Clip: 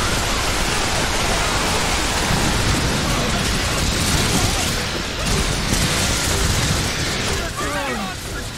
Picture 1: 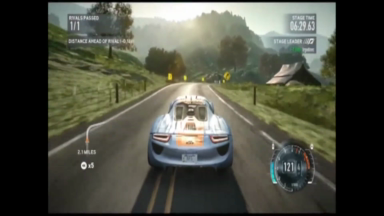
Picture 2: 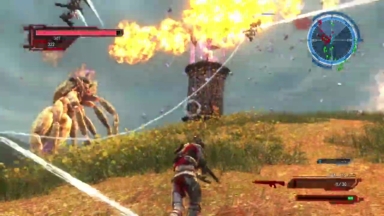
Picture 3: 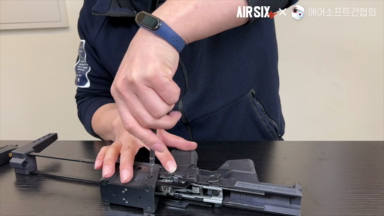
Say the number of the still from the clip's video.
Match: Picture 2